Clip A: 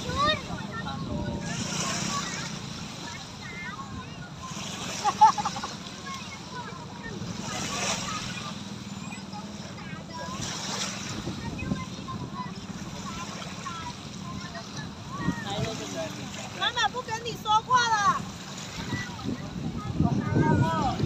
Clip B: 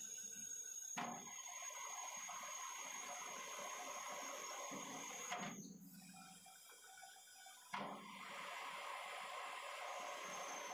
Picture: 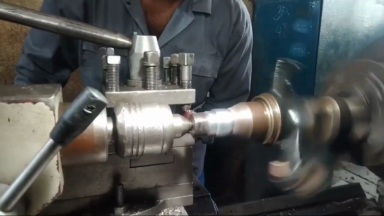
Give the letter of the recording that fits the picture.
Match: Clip B